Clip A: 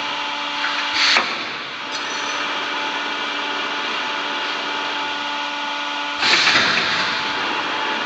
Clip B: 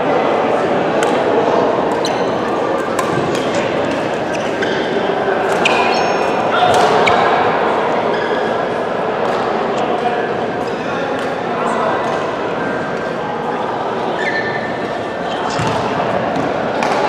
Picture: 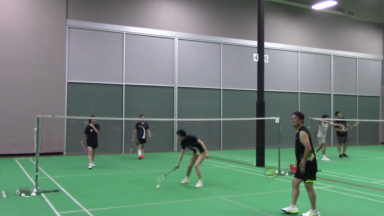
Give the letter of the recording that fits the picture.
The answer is B